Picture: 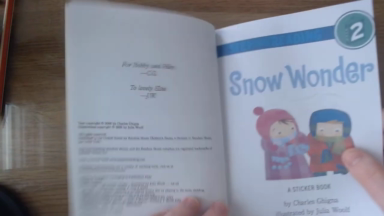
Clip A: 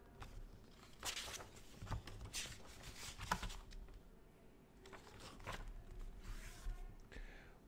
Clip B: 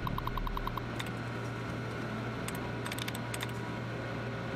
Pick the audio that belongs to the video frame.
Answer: A